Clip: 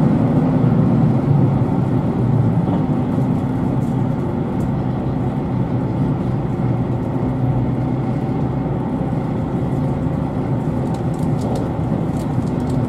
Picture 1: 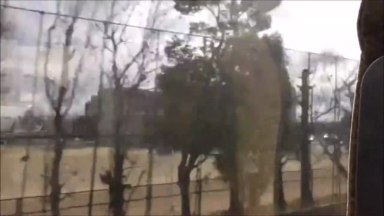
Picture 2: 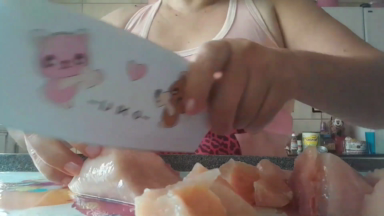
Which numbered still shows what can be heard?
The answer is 1